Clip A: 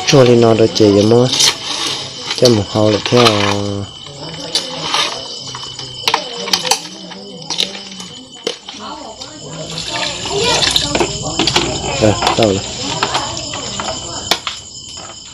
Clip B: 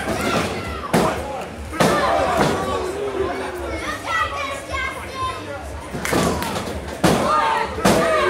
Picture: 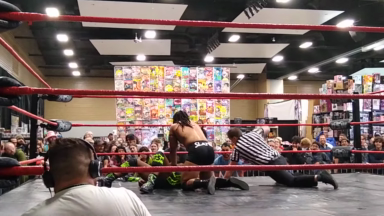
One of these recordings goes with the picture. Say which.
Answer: B